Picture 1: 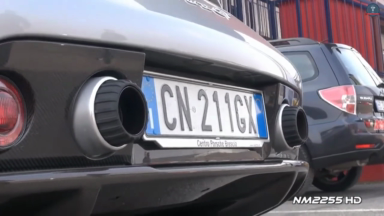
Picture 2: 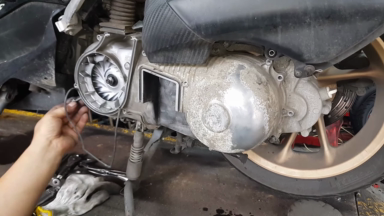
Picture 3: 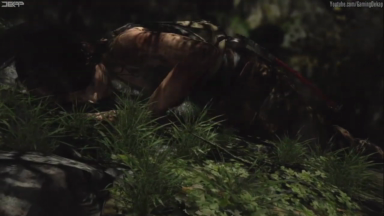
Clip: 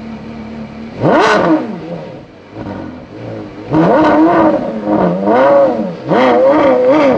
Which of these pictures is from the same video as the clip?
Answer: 1